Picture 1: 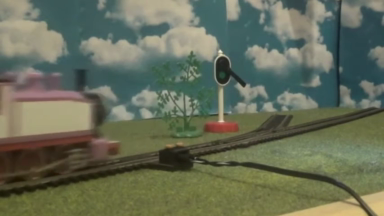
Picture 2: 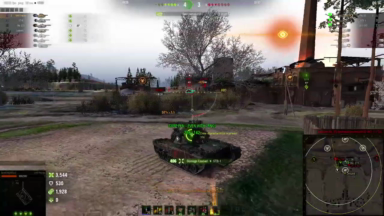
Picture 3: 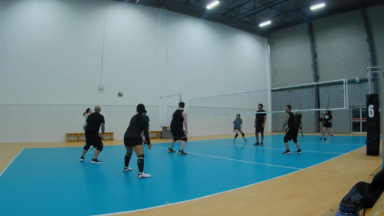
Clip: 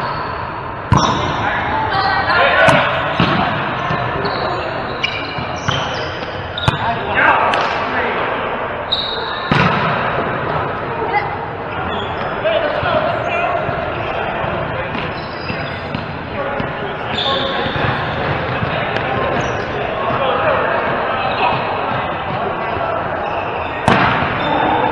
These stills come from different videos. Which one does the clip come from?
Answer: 3